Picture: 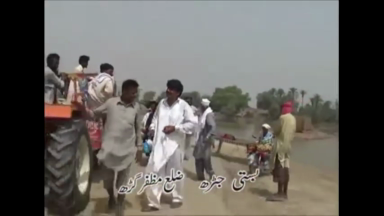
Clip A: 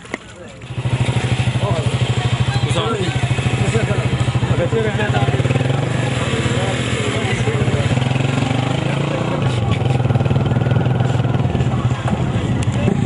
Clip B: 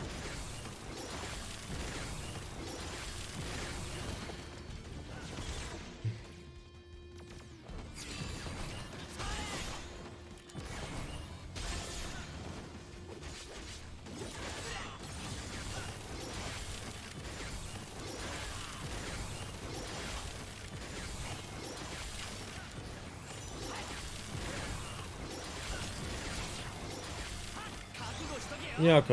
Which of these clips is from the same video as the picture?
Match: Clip A